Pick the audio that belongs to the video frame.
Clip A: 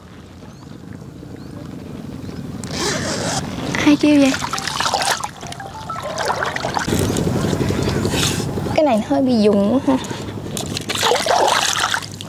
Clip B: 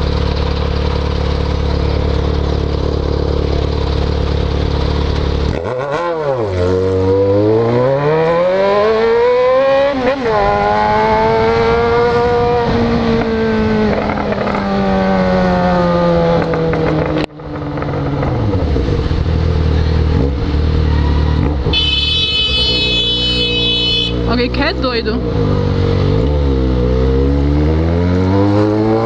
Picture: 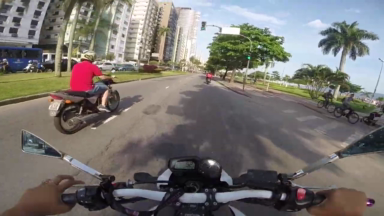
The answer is B